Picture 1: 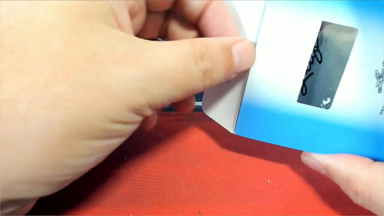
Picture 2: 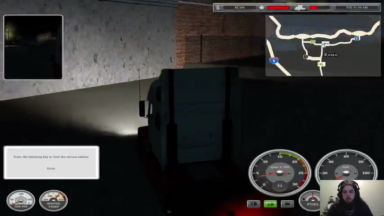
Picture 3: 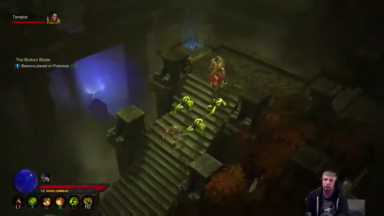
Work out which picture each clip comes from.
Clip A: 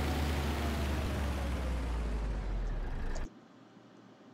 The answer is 2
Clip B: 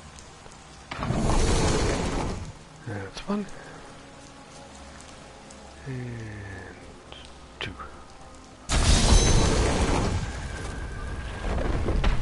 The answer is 3